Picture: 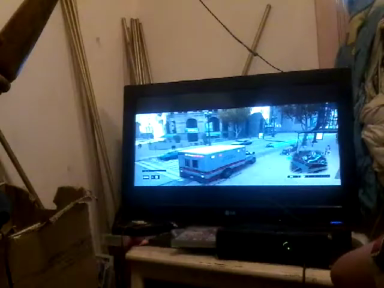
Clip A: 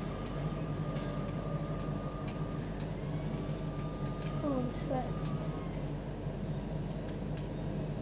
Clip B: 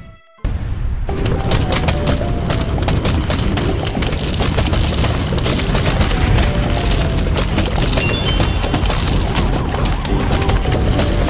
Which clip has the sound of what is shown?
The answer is A